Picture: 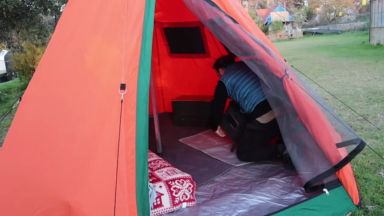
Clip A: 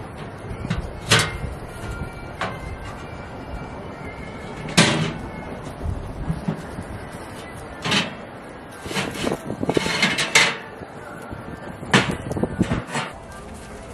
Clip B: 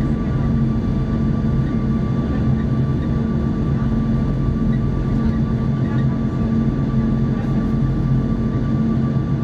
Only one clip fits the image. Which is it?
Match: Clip A